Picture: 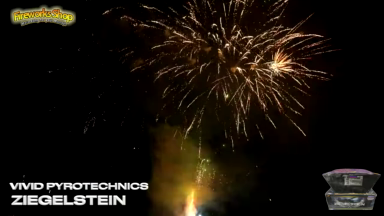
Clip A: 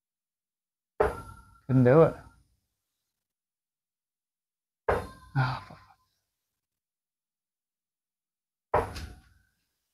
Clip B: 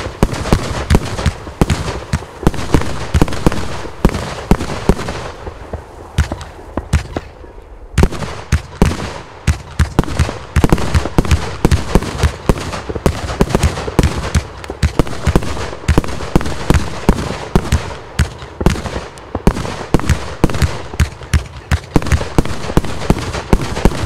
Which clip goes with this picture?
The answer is B